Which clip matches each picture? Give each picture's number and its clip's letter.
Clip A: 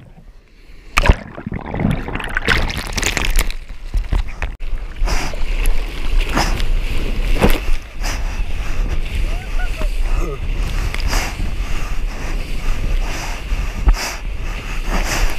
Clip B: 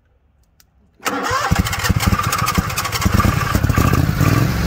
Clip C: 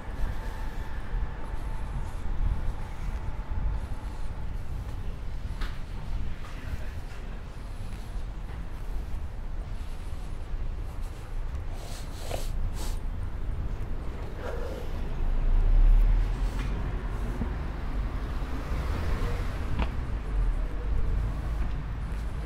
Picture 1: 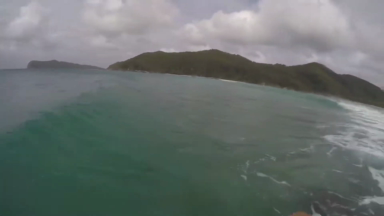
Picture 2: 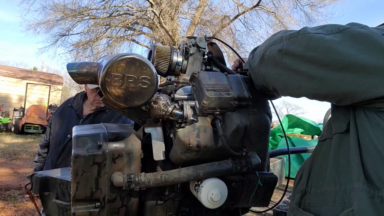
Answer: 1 A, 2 B